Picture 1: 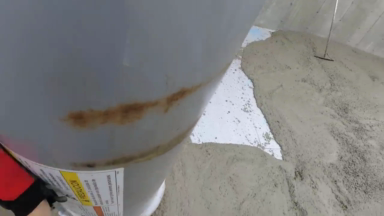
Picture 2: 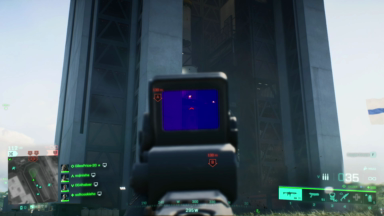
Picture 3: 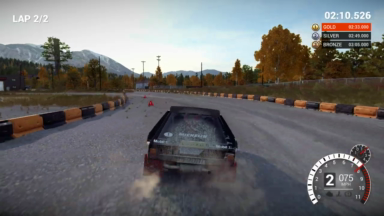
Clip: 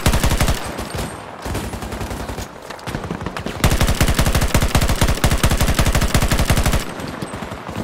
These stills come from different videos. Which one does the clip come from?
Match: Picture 2